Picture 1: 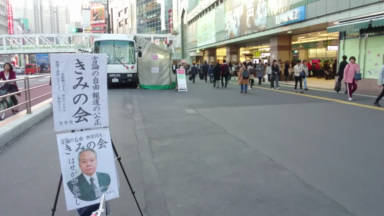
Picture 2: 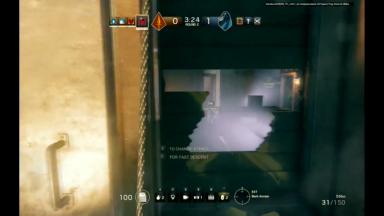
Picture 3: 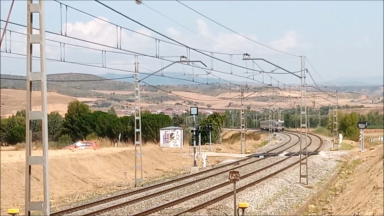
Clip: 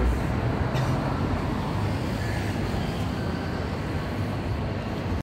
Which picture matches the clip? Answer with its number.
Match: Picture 1